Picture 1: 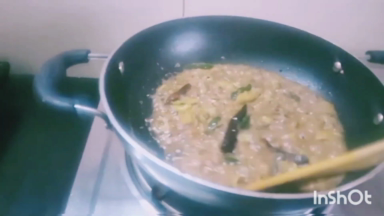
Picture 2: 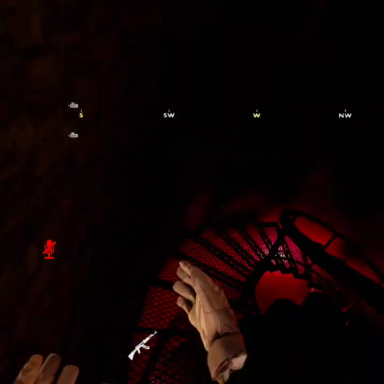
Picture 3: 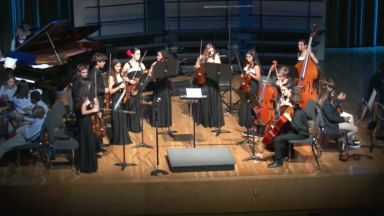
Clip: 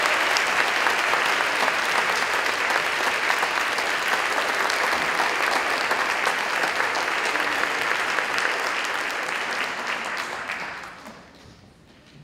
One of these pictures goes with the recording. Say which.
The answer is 3